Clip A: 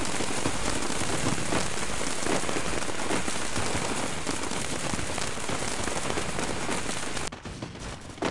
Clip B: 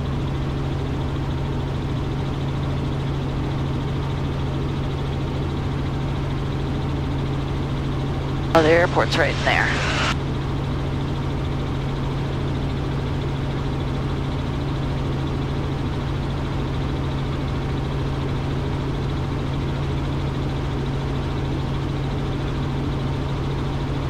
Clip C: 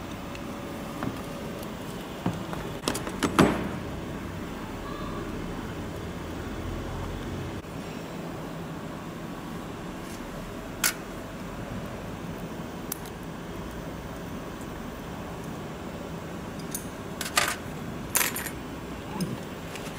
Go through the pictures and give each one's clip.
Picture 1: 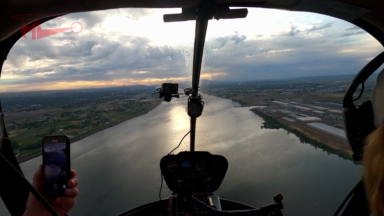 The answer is B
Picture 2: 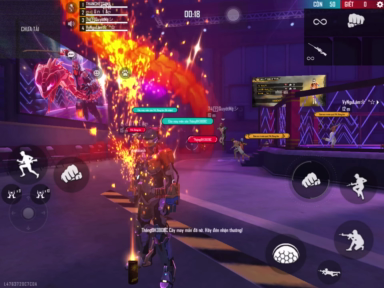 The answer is A